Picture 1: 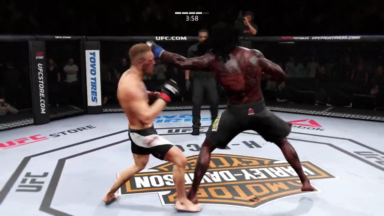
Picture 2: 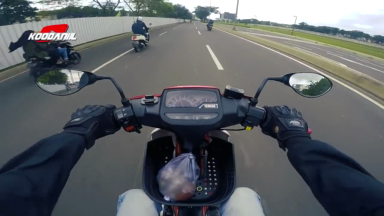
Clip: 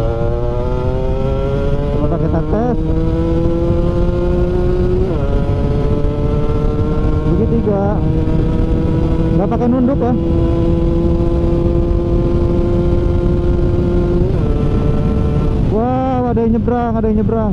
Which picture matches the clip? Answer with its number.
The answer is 2